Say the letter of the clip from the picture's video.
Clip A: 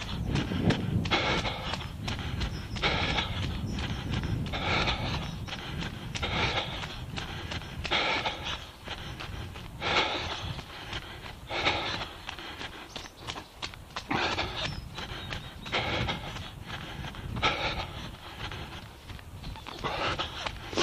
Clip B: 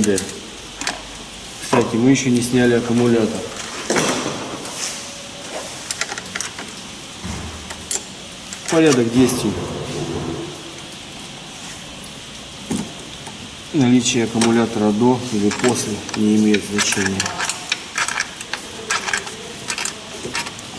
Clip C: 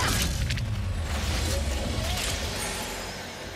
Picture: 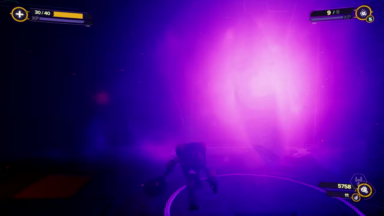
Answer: C